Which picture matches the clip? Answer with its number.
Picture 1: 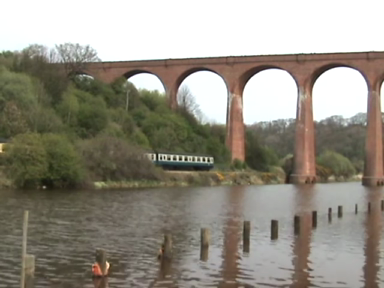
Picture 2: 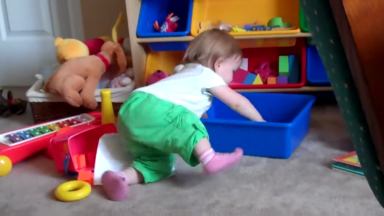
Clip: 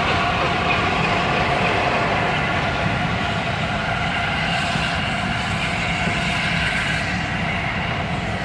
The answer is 1